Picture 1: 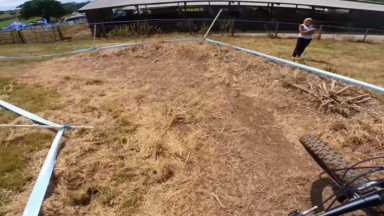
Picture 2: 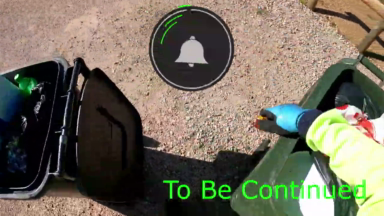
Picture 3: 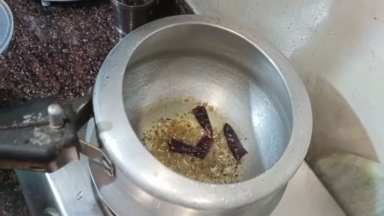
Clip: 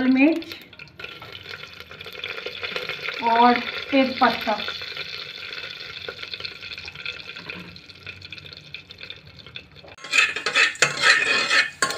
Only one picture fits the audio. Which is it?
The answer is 3